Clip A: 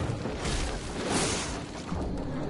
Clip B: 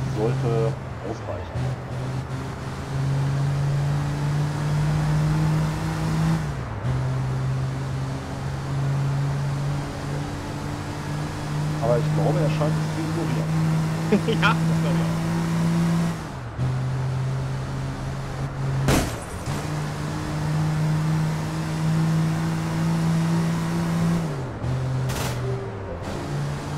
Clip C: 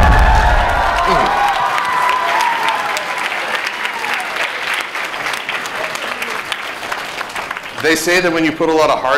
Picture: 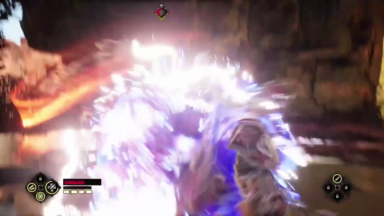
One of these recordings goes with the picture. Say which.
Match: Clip A